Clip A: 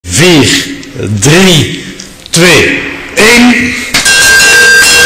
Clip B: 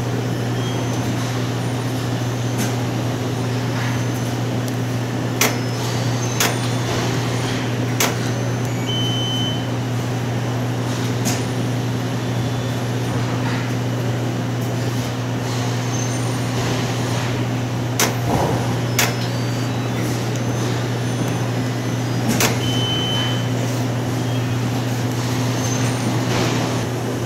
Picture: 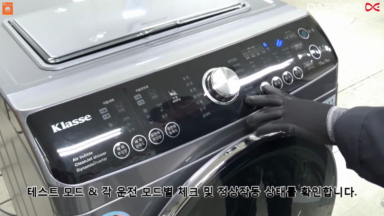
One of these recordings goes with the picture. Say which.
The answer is B